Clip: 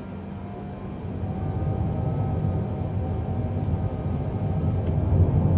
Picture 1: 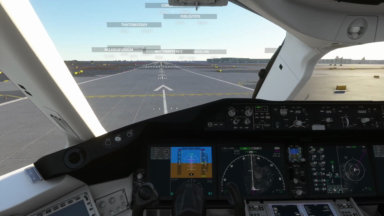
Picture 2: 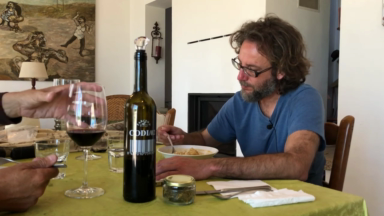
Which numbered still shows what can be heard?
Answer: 1